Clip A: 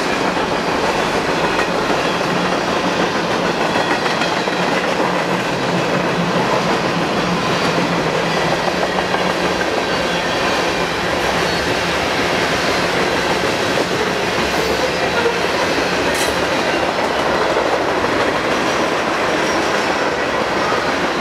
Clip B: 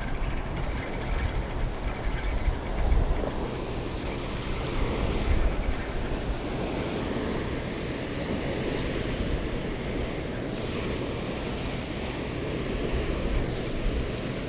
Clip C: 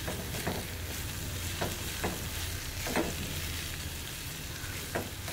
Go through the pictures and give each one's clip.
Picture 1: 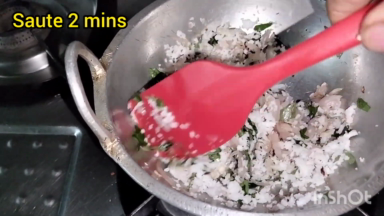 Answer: C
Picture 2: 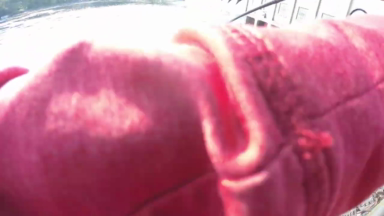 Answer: B